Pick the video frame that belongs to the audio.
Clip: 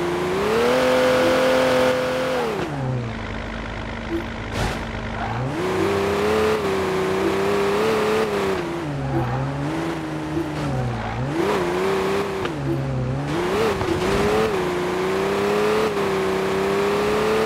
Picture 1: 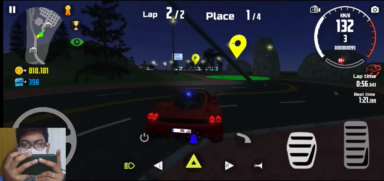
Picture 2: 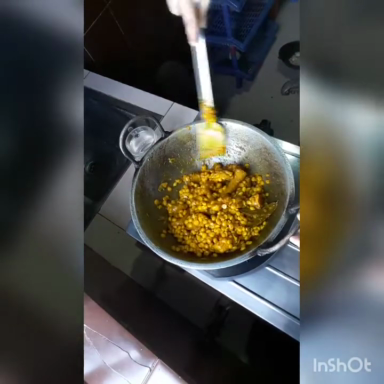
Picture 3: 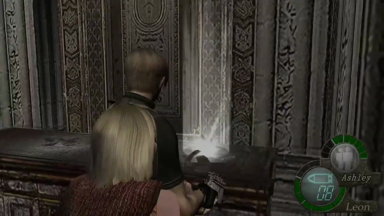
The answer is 1